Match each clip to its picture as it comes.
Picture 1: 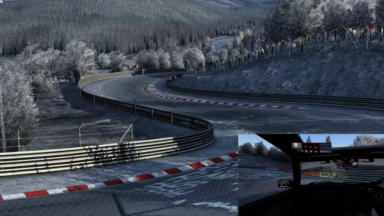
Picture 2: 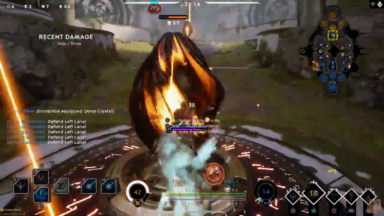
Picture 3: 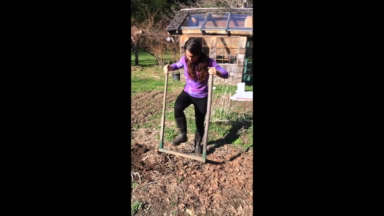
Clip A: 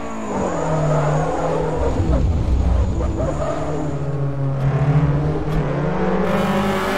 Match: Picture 1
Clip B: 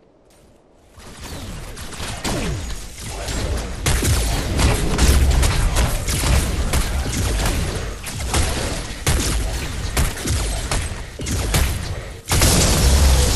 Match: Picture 2